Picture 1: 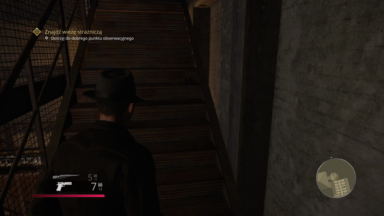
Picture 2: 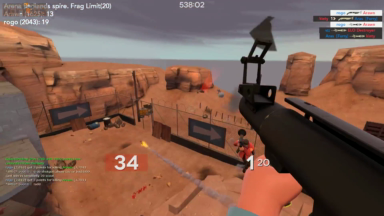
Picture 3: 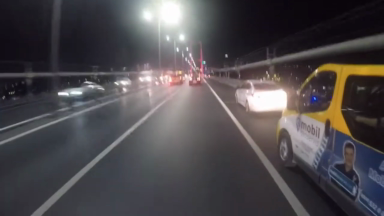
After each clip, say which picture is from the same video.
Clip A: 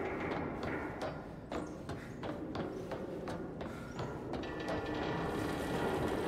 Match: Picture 1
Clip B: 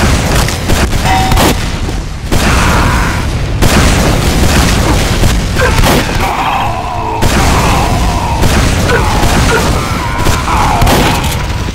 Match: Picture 2